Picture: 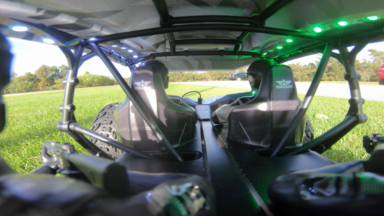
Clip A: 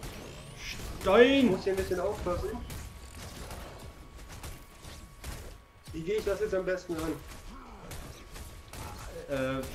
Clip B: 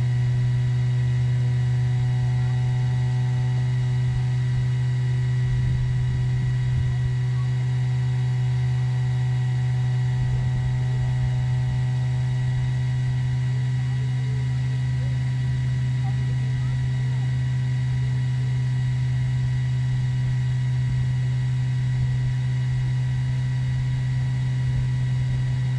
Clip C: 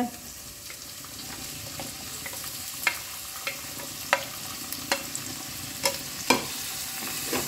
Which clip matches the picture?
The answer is B